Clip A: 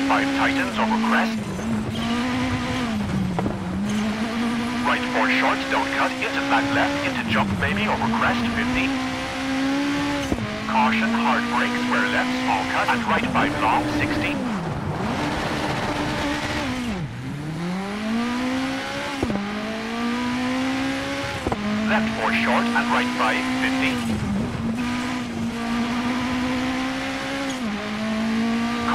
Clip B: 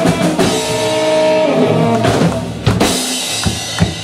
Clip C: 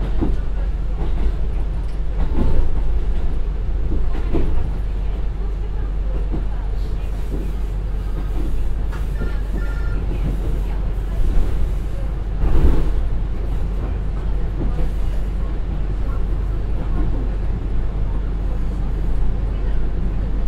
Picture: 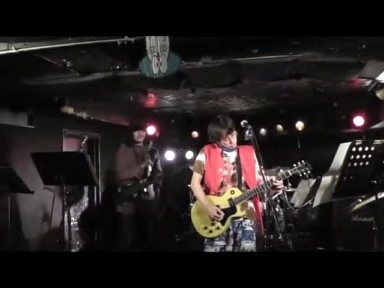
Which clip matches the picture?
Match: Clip B